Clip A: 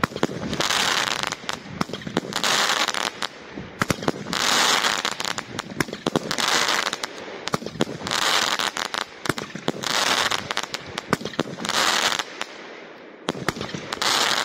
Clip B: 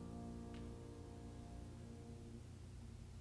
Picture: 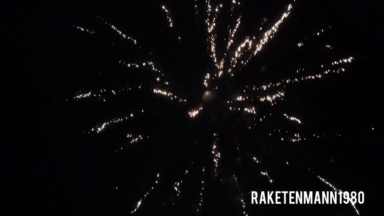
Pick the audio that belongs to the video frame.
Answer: A